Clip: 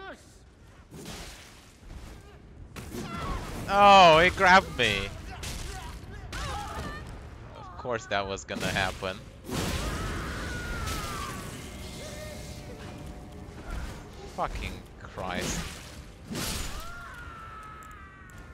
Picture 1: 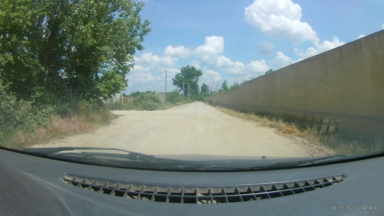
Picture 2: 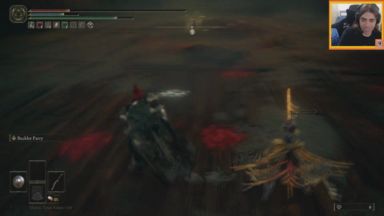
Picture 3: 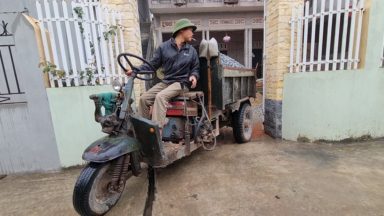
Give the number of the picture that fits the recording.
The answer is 2